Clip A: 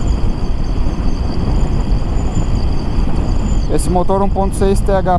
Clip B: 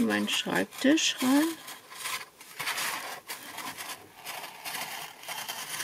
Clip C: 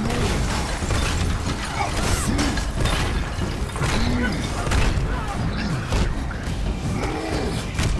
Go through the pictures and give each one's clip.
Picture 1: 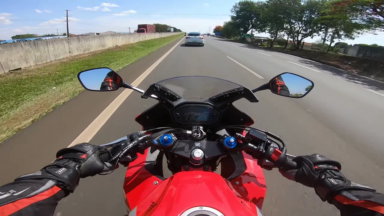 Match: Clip A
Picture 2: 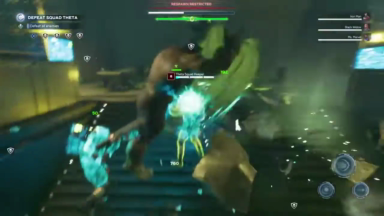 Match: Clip C